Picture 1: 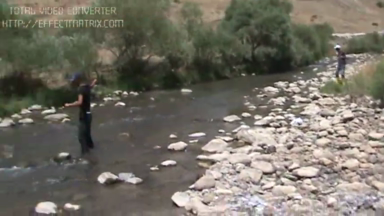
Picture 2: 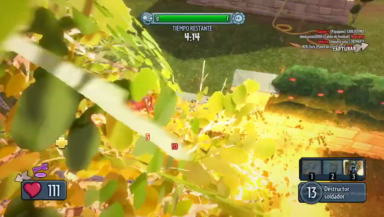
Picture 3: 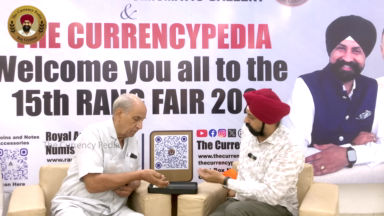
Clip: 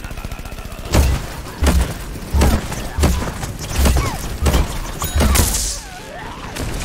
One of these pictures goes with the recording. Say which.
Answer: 2